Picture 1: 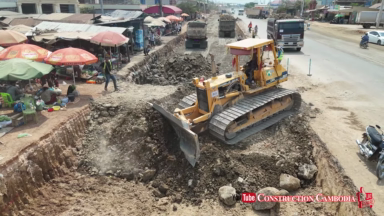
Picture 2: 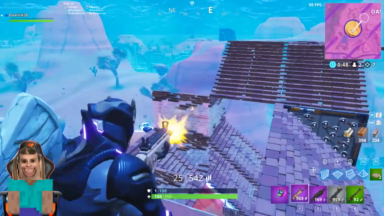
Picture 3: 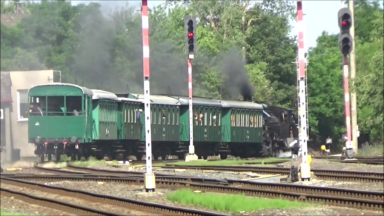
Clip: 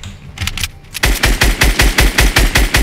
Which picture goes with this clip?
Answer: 2